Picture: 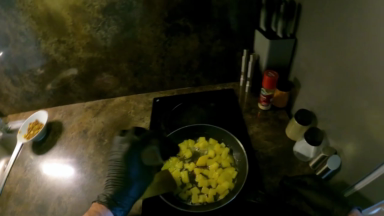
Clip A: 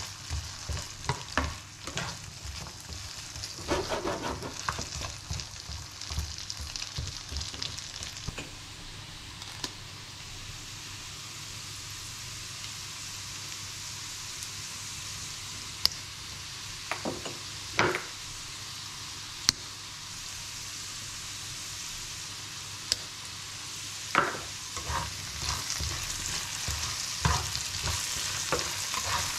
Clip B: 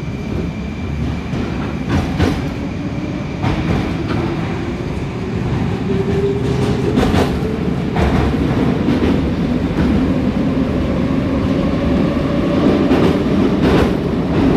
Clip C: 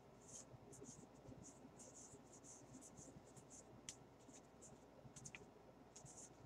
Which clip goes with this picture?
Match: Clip A